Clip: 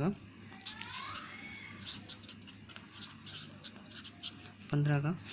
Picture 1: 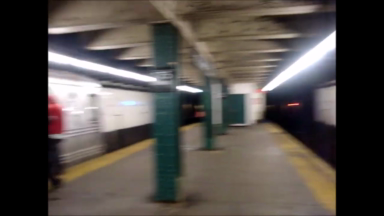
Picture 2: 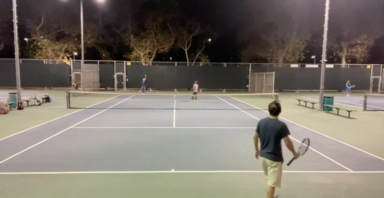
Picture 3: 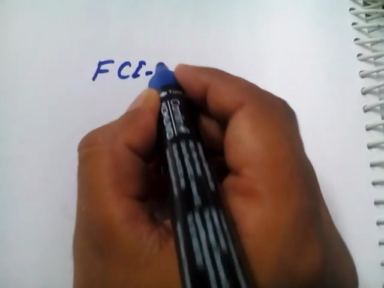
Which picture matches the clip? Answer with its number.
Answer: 3